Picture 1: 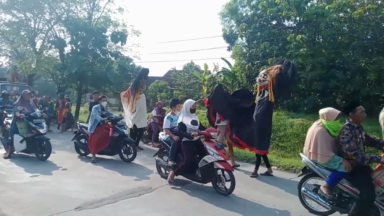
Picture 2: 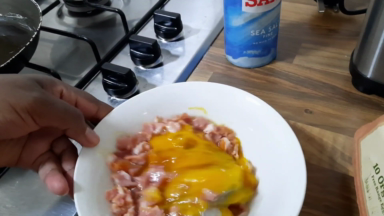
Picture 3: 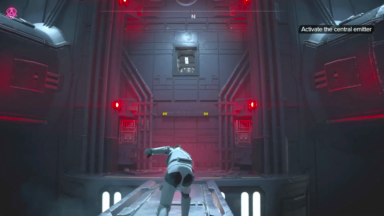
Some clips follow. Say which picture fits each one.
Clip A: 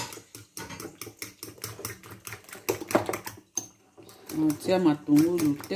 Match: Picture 2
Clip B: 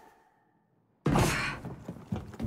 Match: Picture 3